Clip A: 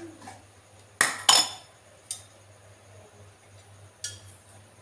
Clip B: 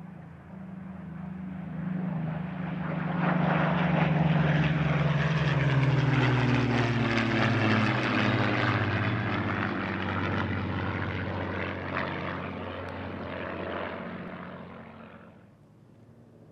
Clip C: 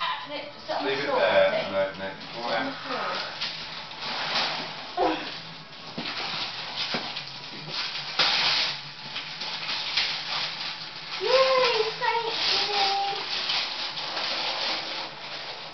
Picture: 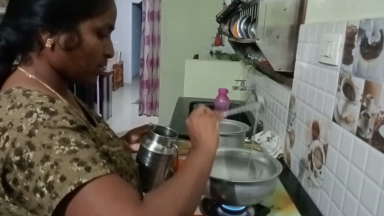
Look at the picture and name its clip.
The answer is A